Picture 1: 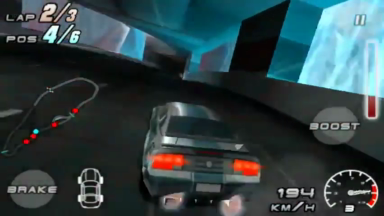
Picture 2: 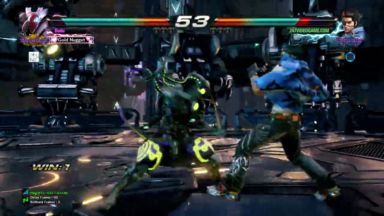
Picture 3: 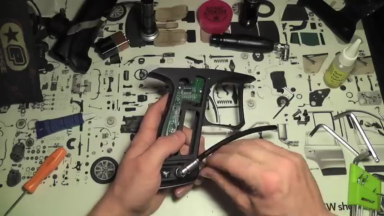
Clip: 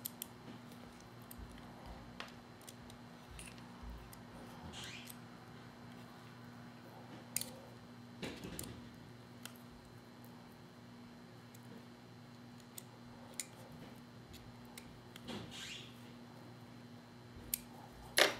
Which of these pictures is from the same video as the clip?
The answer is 3